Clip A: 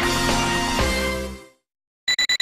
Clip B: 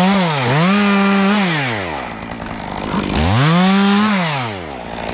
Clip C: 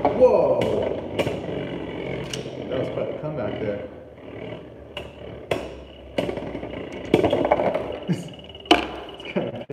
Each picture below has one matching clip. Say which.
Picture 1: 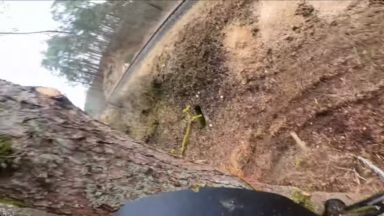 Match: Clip B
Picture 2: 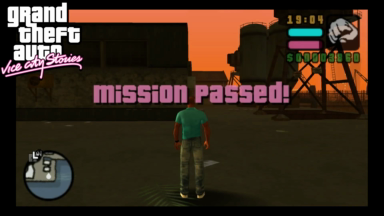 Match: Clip A